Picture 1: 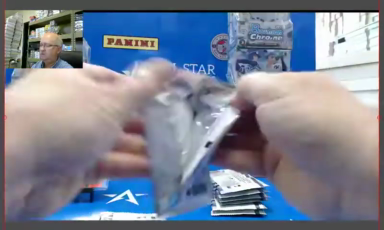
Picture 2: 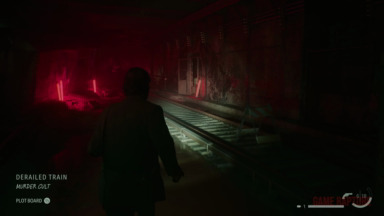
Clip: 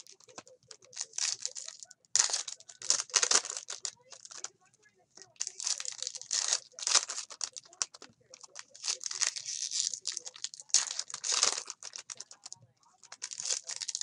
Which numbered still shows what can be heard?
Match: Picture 1